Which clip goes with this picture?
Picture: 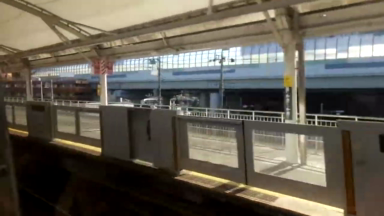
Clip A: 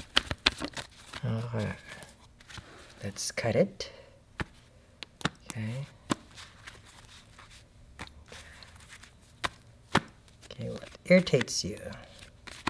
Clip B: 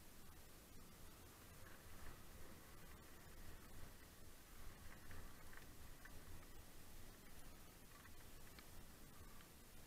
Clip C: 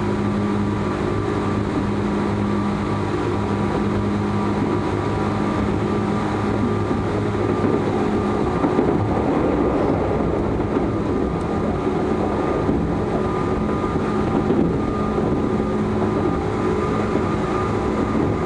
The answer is C